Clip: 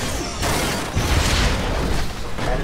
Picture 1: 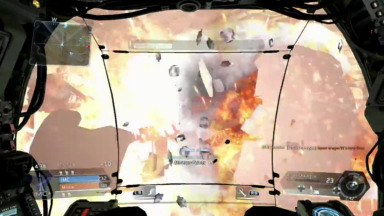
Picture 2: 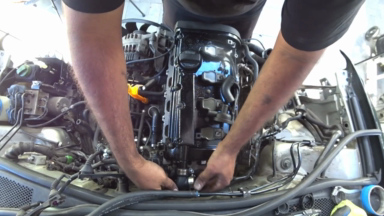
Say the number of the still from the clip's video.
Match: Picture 1